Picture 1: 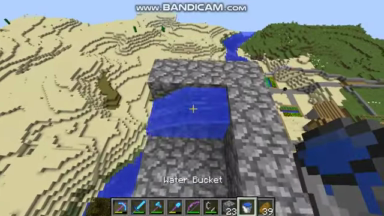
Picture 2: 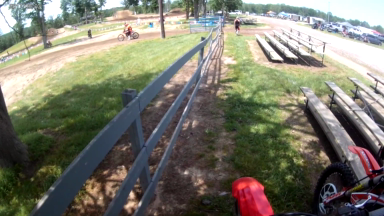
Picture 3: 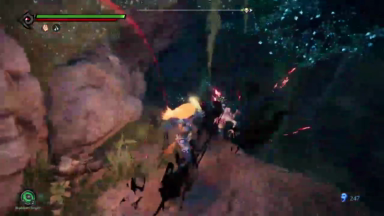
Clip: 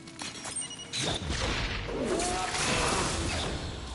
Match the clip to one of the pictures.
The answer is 3